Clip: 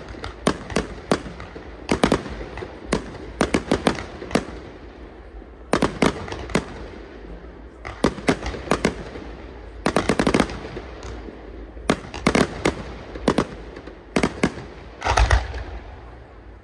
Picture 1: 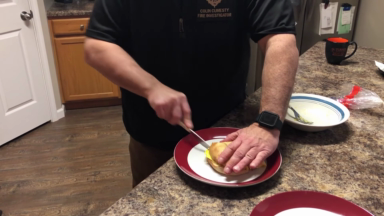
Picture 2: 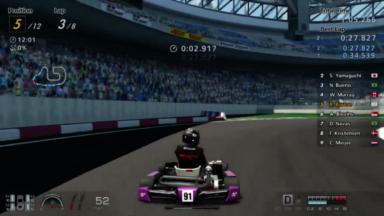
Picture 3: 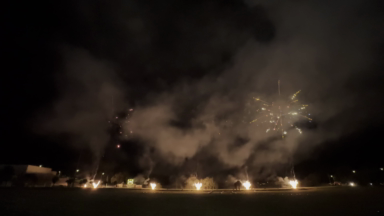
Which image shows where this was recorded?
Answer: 3